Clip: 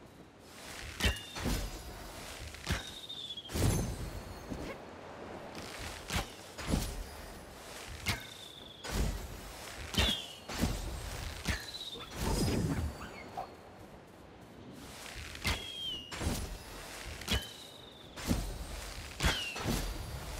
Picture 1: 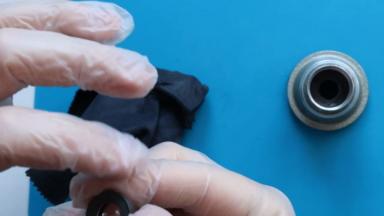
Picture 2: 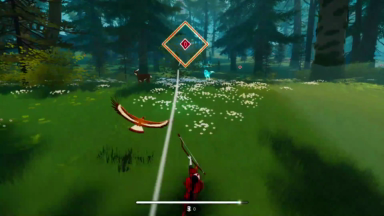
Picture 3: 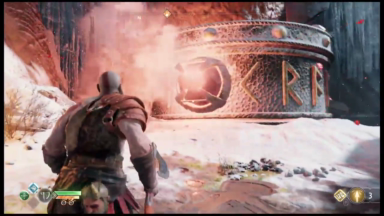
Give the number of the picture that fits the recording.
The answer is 2